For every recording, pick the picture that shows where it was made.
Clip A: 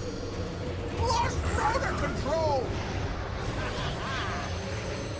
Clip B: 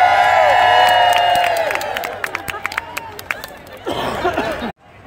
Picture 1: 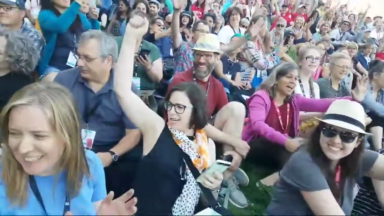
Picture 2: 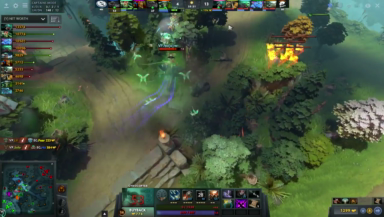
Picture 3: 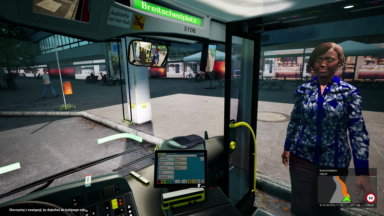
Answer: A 2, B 1